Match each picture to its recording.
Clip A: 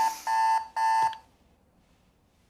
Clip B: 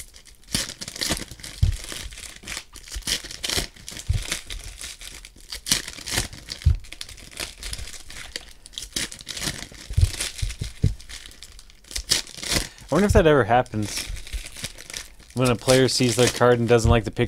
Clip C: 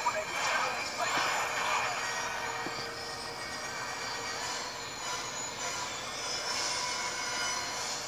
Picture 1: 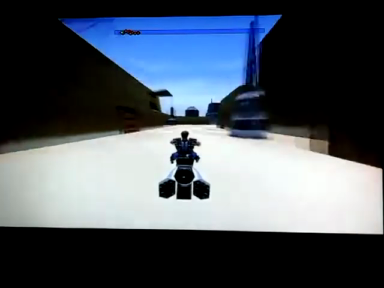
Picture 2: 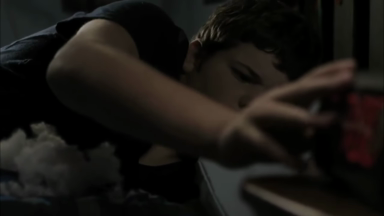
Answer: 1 C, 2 A